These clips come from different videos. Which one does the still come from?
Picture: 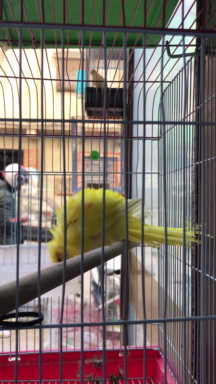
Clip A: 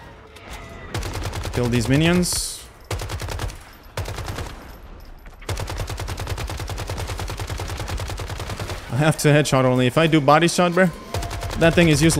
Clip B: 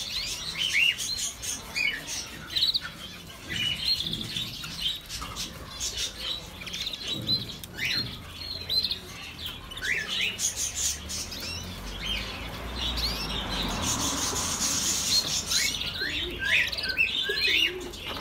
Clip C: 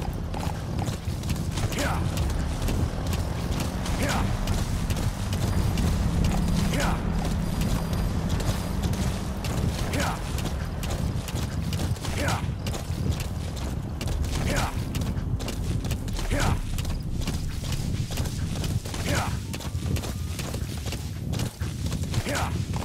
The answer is B